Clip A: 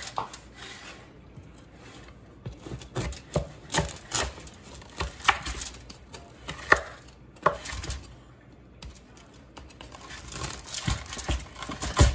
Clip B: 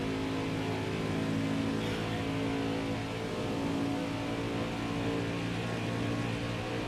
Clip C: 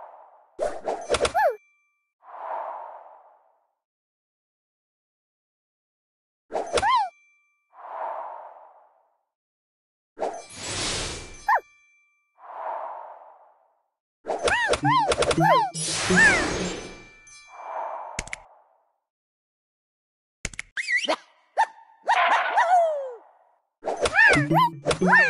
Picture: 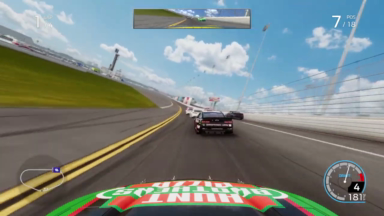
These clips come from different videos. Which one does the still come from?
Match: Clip B